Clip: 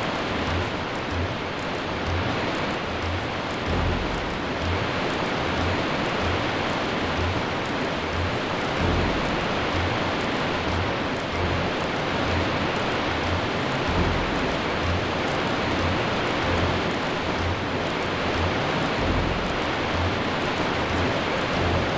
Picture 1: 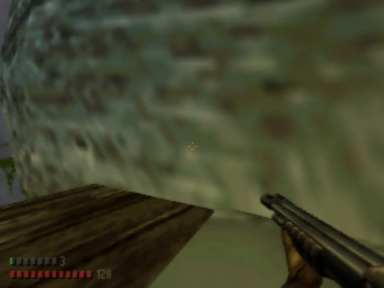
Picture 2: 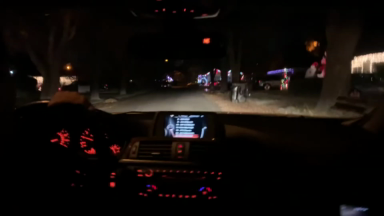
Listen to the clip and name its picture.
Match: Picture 1